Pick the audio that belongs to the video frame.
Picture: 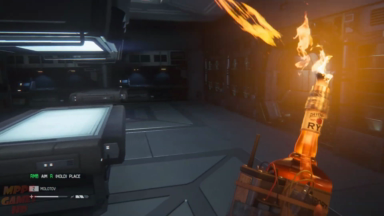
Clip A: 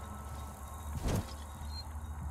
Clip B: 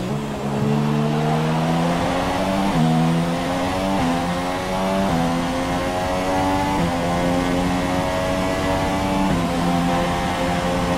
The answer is A